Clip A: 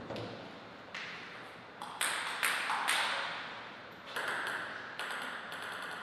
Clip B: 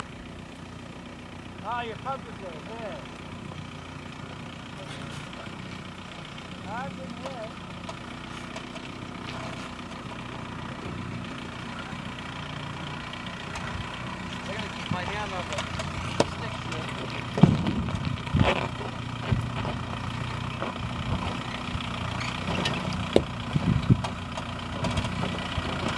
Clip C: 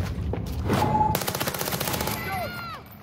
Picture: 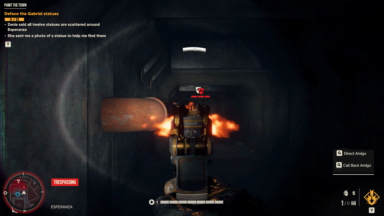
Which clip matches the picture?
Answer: C